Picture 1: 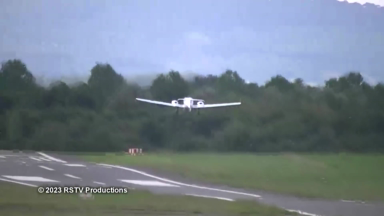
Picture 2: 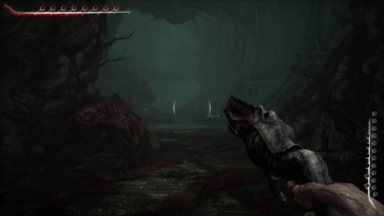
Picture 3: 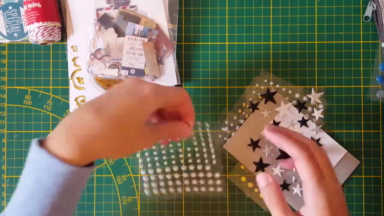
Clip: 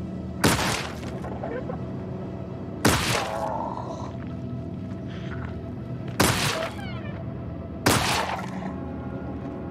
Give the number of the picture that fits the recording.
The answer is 2